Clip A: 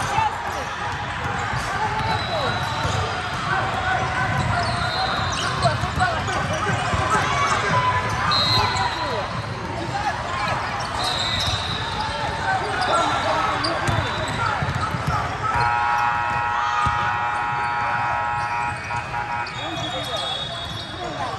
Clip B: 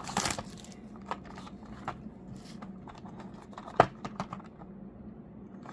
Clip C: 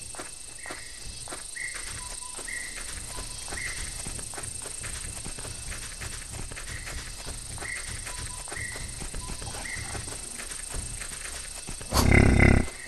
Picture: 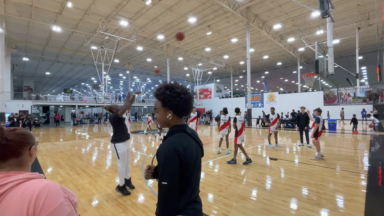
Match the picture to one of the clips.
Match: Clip A